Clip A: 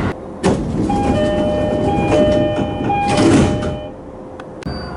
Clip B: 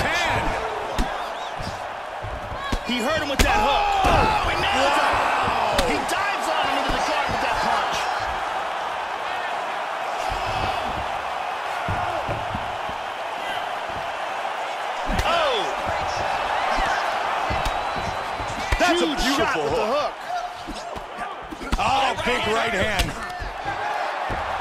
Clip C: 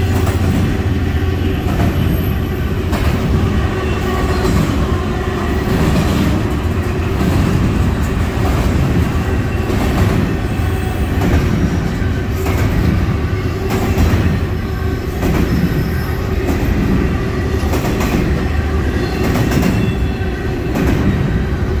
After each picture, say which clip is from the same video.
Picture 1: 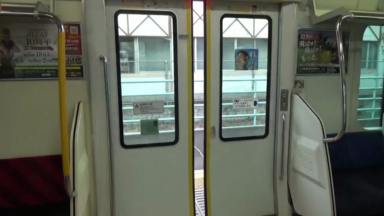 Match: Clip A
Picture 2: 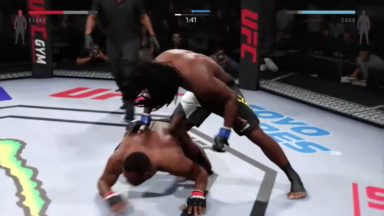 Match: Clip B